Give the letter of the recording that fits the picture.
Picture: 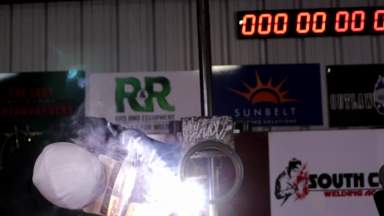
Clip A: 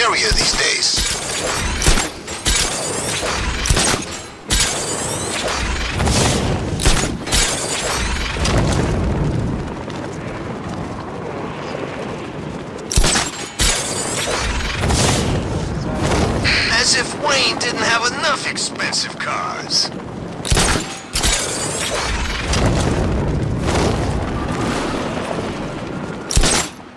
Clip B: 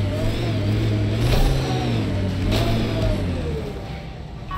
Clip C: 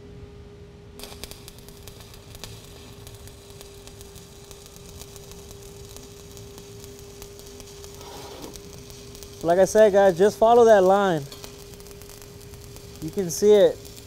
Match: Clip C